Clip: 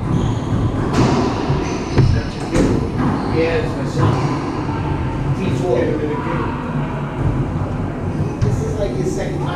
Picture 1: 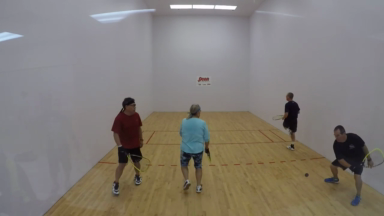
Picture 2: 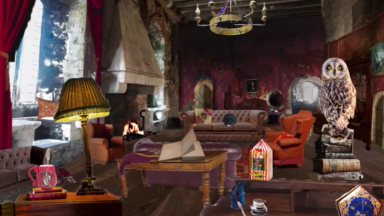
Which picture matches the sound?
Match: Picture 1